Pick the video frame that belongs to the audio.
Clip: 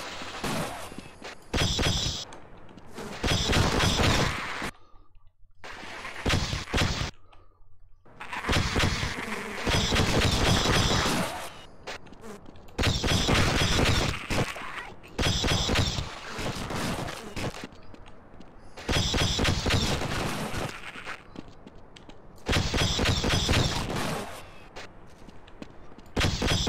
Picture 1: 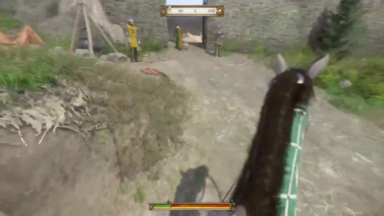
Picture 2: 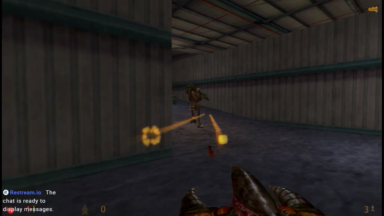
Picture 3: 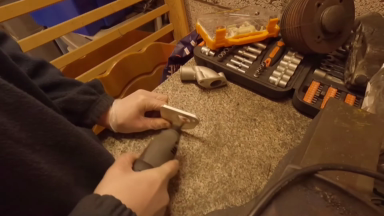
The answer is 2